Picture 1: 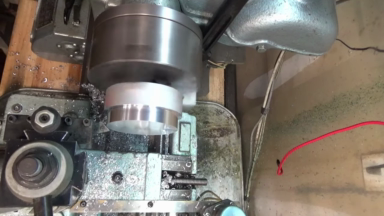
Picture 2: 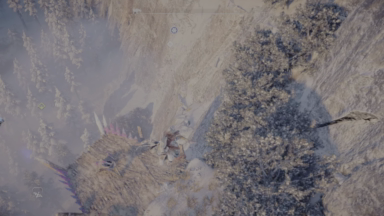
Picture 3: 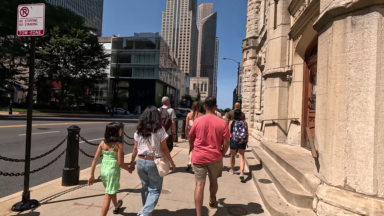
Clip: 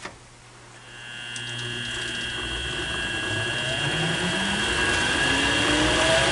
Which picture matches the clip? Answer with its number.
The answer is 1